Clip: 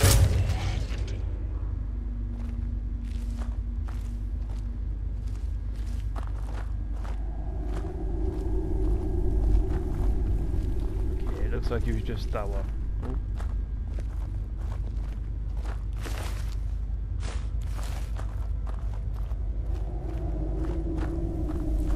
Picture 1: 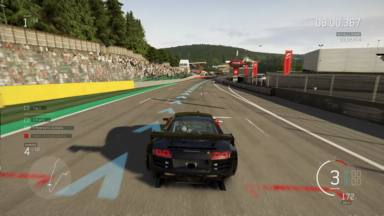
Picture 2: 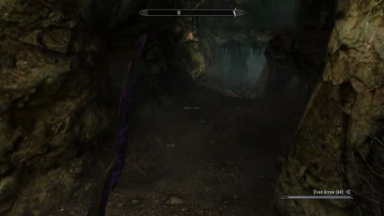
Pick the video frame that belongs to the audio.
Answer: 2